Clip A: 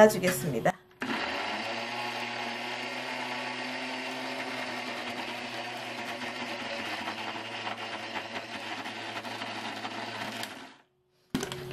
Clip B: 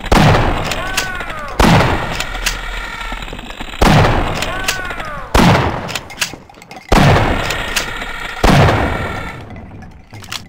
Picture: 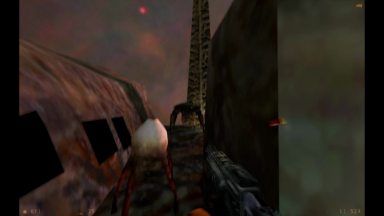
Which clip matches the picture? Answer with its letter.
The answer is B